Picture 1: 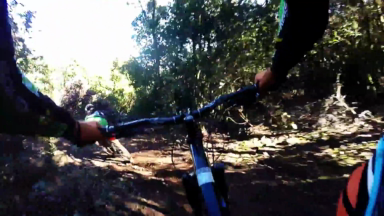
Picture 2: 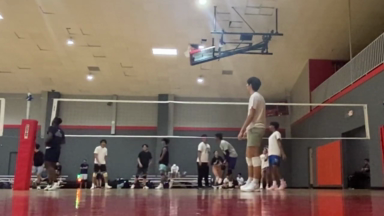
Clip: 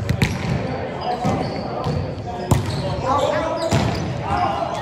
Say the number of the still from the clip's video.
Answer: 2